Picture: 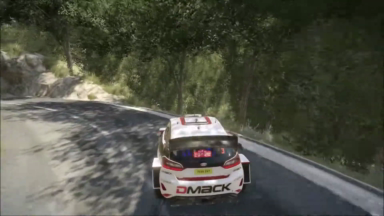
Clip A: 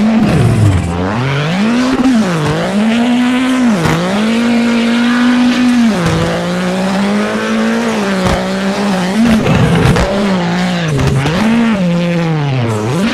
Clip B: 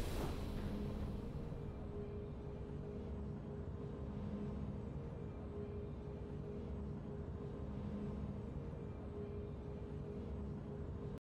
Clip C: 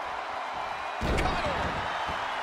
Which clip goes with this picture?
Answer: A